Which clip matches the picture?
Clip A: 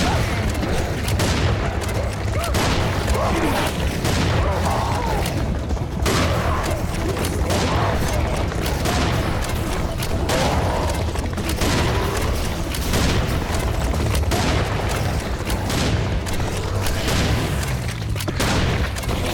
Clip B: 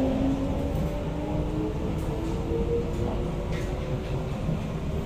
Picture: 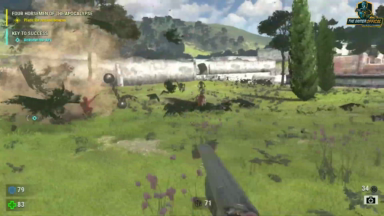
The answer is A